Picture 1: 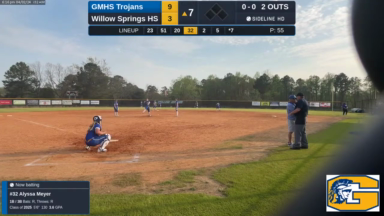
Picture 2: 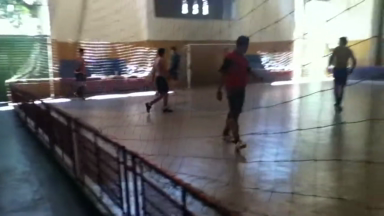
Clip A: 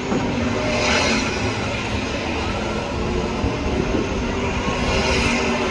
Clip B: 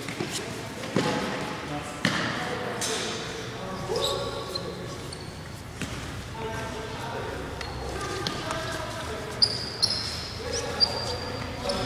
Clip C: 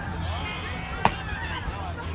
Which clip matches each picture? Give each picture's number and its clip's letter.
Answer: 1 C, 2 B